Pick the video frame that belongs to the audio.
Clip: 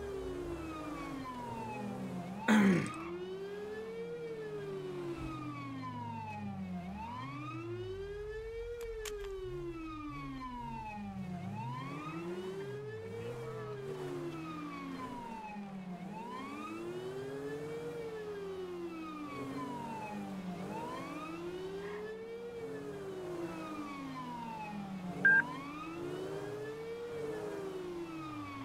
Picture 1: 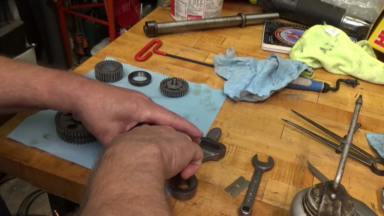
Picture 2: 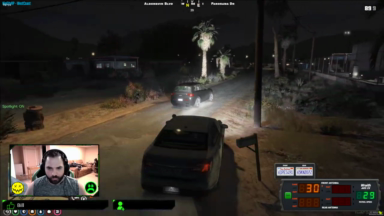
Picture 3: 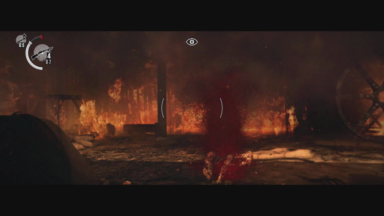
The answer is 2